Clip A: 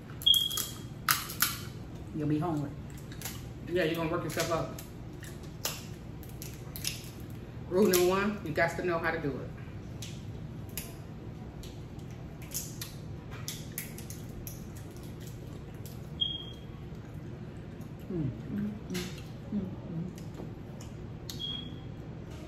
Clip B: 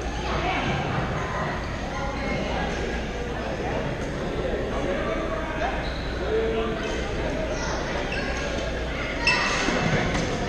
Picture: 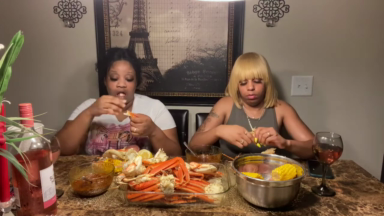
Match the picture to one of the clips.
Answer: A